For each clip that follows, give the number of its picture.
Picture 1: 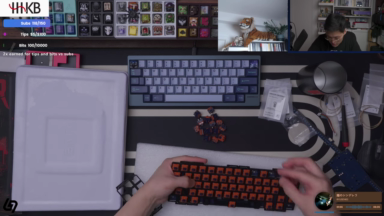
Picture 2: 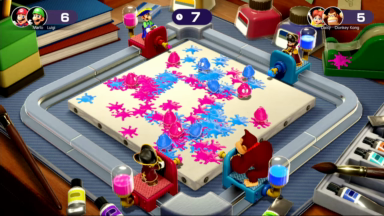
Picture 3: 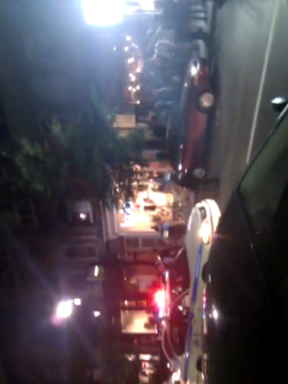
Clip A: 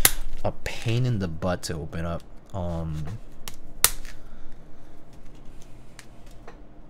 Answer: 1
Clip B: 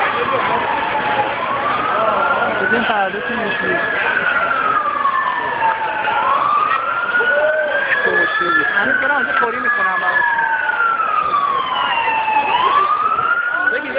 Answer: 3